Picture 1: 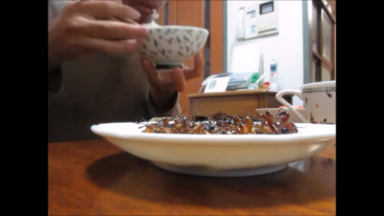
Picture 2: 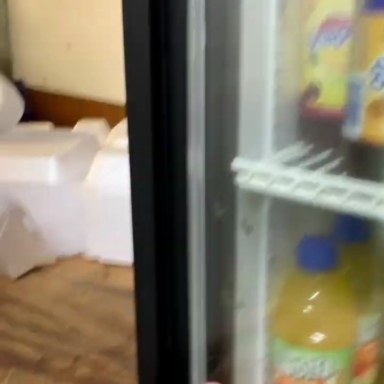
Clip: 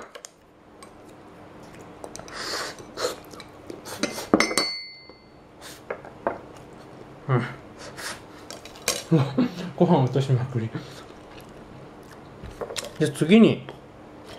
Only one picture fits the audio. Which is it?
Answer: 1